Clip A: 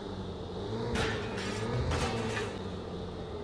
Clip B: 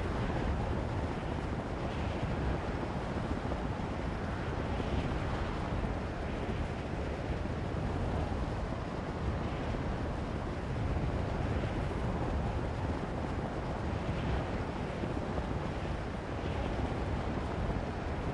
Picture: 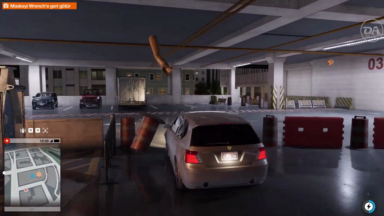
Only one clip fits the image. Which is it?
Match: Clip A